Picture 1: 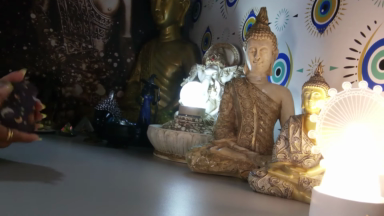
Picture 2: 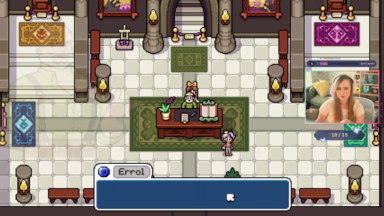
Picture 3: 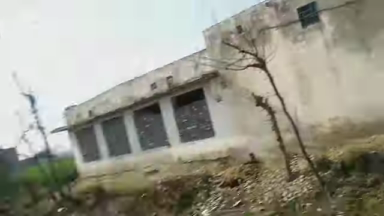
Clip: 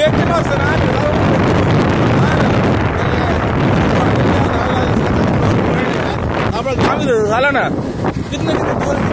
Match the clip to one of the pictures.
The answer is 3